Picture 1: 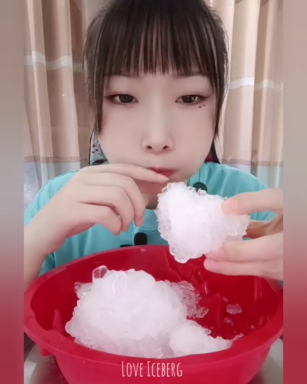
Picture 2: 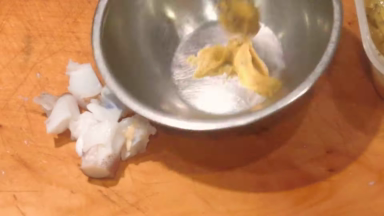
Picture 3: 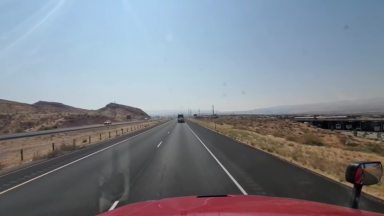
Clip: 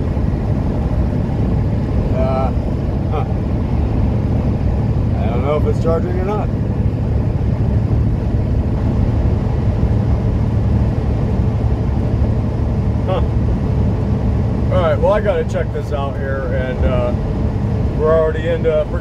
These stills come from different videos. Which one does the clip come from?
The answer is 3